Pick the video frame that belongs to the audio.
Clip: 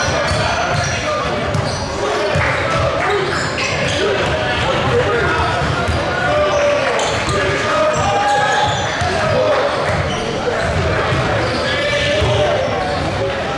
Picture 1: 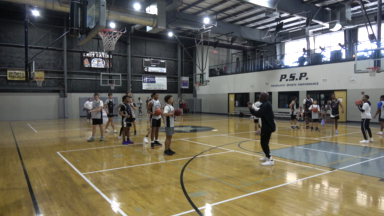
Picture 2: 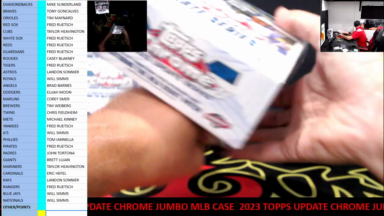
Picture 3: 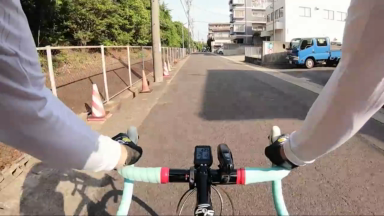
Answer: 1